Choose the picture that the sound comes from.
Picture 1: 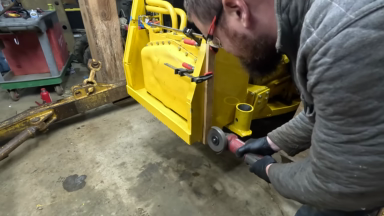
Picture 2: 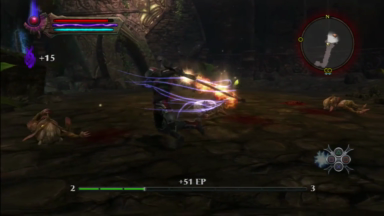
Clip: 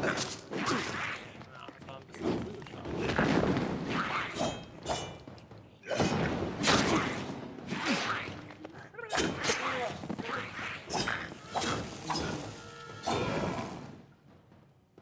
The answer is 2